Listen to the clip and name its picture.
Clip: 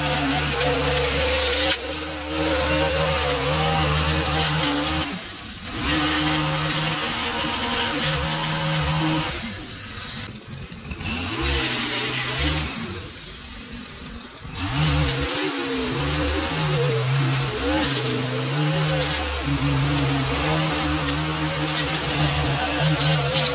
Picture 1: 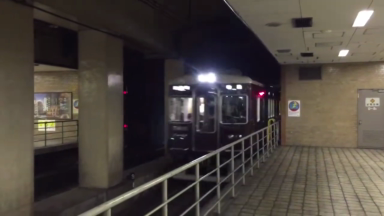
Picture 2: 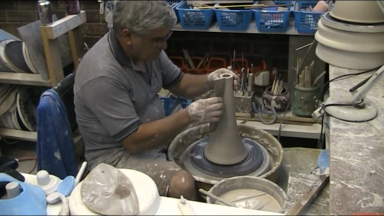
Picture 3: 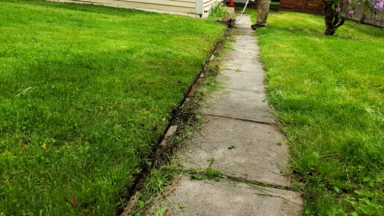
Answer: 3